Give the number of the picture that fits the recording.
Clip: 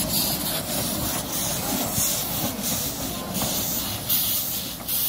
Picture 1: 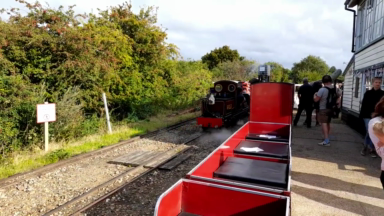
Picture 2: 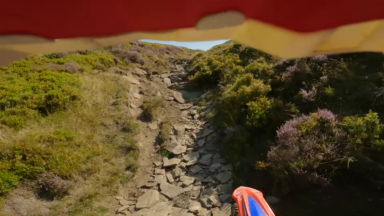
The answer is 1